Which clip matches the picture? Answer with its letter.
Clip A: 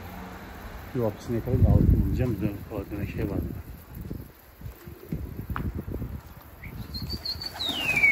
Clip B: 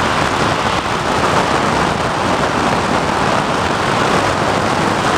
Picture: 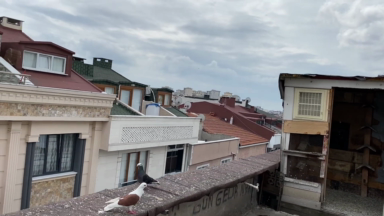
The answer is A